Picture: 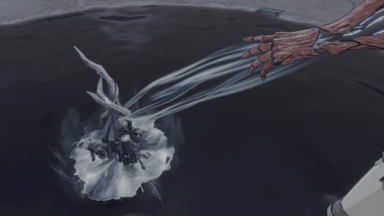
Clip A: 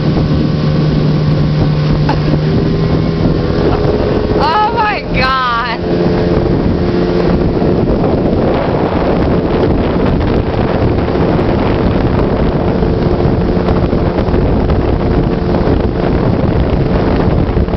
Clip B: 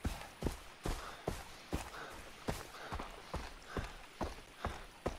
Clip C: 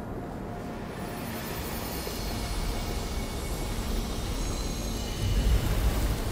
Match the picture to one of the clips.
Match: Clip C